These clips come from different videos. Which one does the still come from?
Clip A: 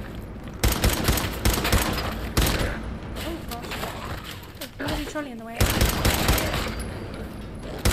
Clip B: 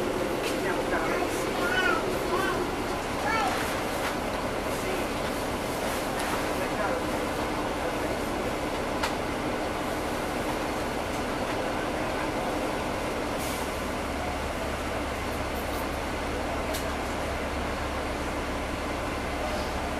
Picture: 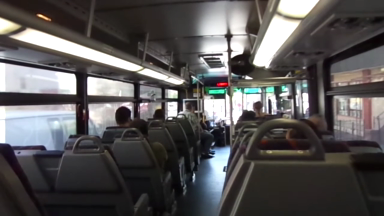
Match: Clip B